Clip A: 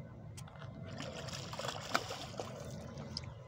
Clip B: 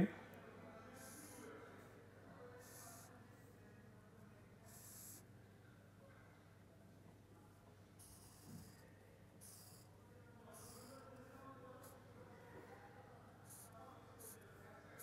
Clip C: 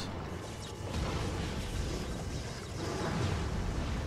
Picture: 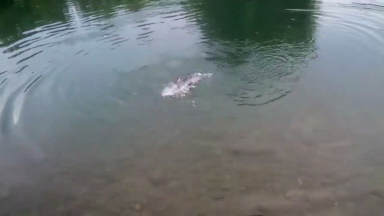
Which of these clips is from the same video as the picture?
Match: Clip A